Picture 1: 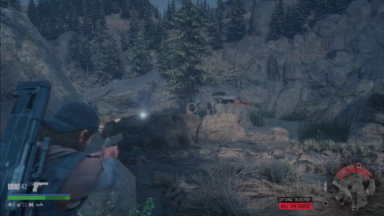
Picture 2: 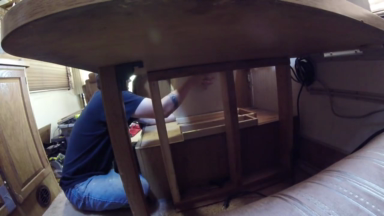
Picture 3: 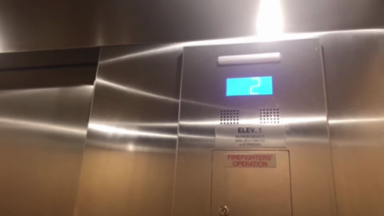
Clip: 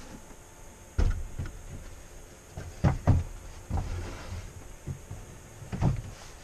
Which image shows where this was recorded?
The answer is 2